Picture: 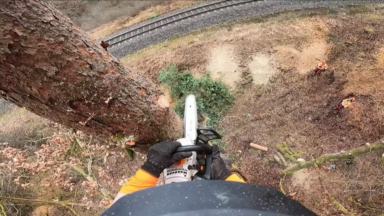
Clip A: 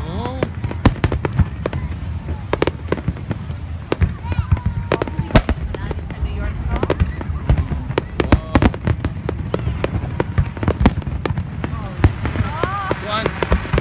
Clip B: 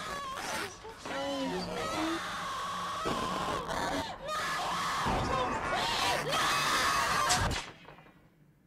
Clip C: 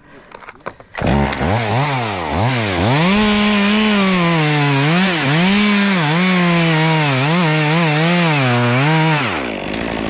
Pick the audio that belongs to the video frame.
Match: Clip C